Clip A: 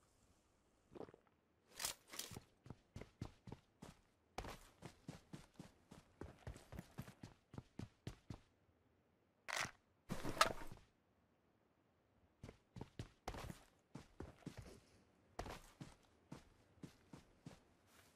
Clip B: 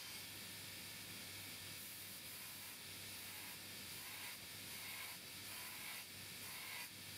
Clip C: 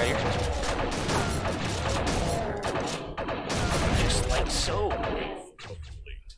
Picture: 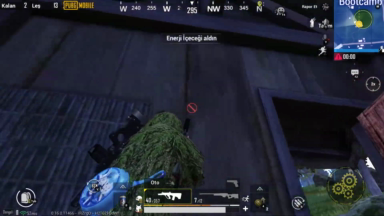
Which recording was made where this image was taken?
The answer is A